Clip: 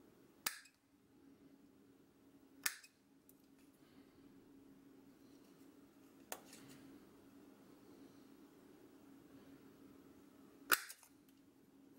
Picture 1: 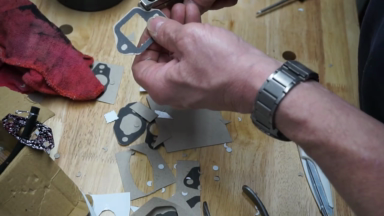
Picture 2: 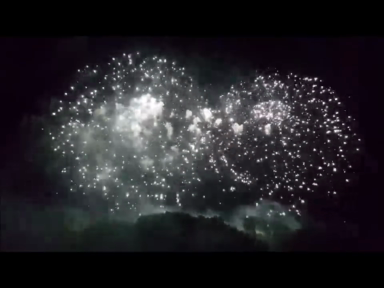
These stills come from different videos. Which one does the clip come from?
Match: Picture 1